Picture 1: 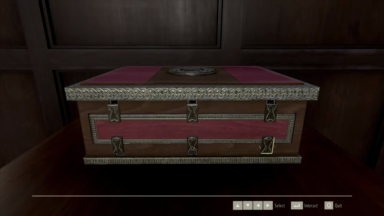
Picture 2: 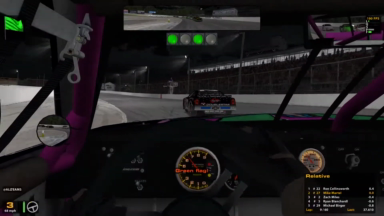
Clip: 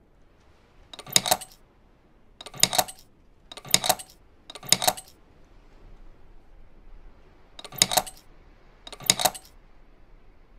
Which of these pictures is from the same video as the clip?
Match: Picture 1